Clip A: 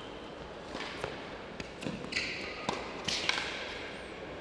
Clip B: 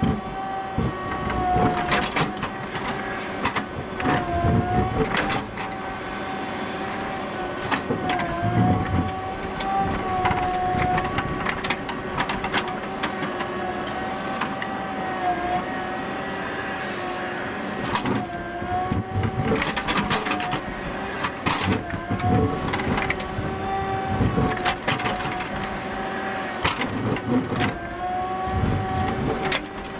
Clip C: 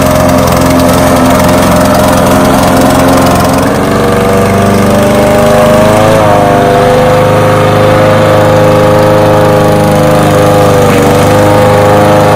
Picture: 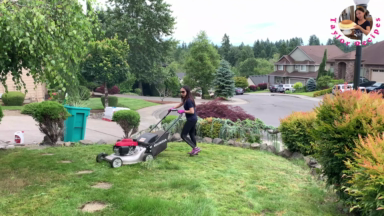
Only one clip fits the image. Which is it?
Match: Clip C